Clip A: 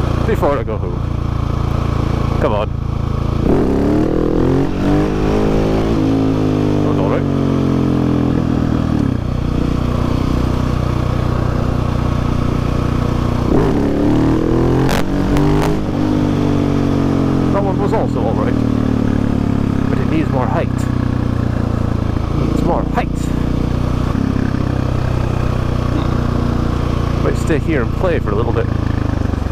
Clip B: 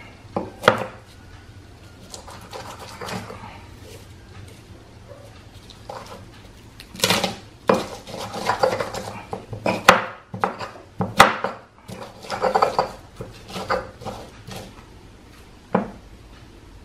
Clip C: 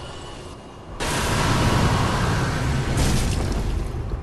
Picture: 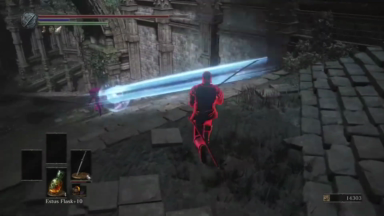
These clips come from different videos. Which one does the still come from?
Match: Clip C